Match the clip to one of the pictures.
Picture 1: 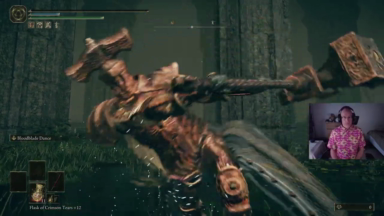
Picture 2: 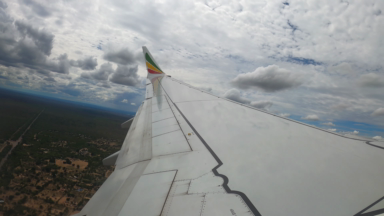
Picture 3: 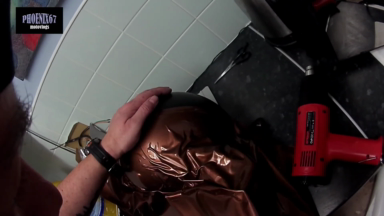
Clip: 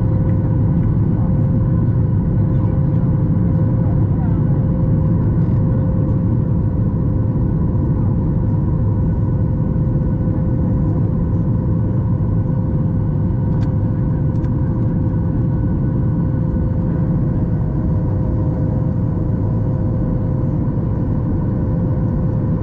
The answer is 2